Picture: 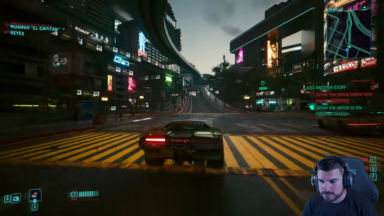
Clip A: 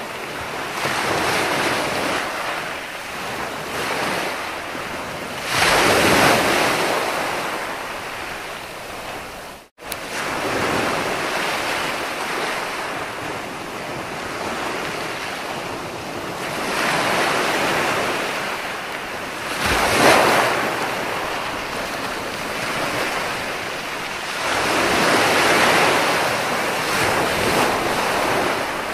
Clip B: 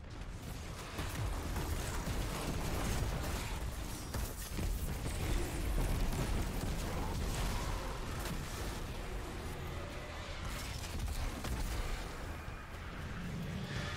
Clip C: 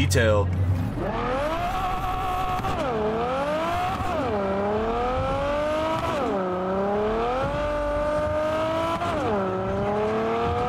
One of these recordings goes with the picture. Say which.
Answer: C